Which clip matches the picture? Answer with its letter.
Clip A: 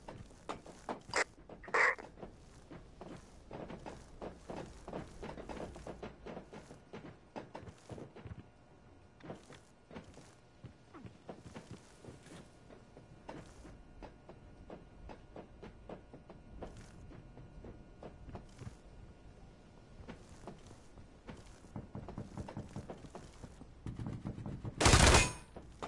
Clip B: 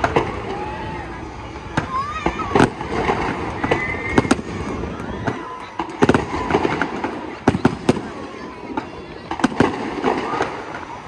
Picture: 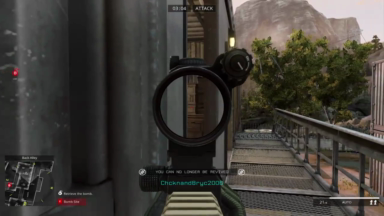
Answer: A